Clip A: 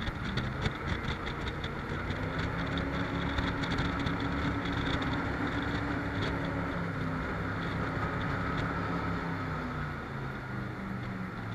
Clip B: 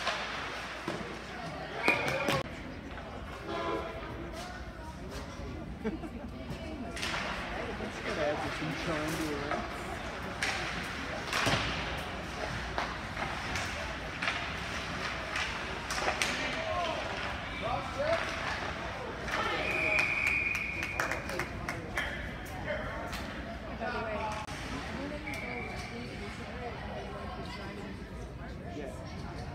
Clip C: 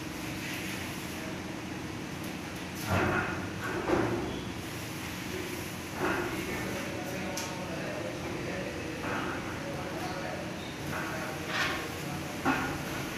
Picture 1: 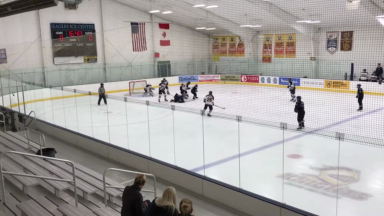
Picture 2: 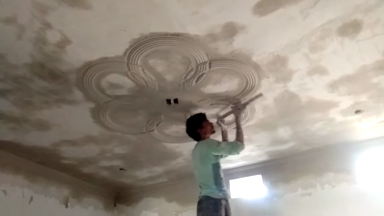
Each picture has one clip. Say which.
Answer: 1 B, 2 C